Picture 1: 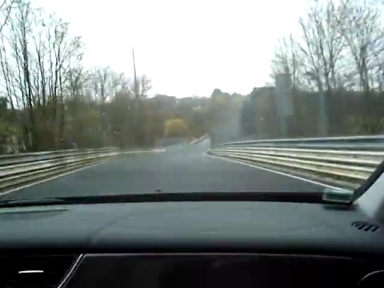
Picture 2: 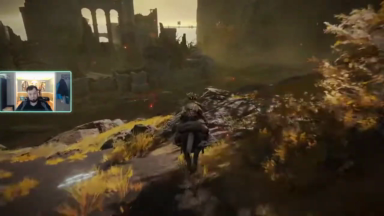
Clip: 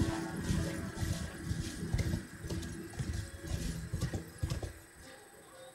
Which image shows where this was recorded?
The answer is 2